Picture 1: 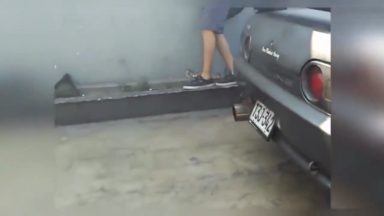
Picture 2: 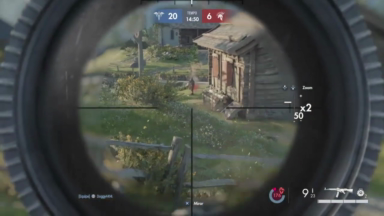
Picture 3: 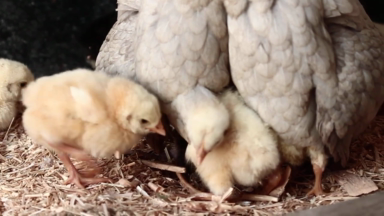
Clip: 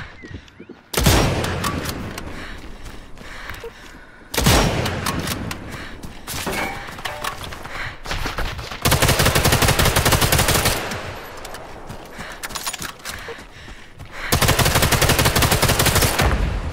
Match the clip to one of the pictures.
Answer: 2